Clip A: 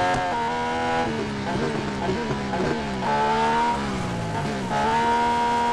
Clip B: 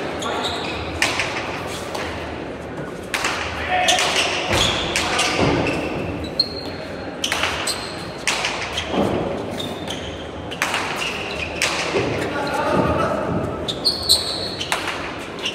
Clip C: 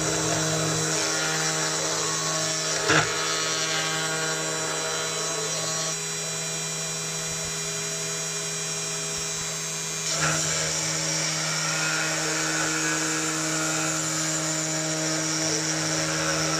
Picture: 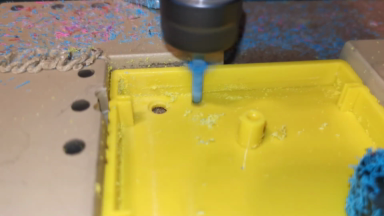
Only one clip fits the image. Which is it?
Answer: C